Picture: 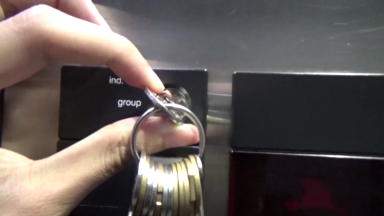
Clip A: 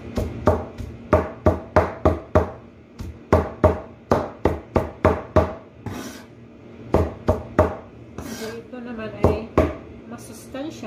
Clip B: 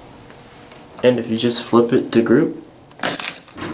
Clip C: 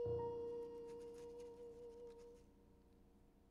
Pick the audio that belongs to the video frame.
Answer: B